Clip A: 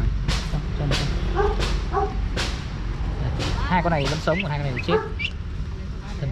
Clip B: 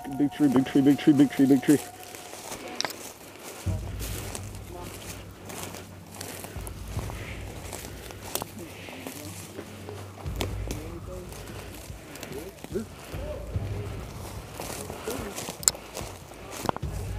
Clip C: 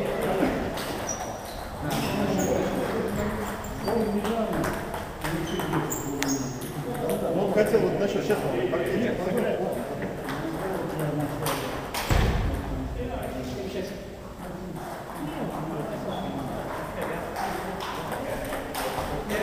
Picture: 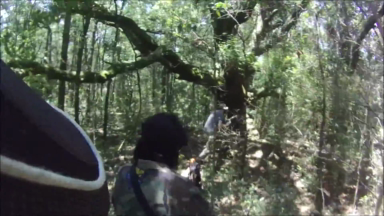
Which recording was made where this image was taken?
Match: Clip B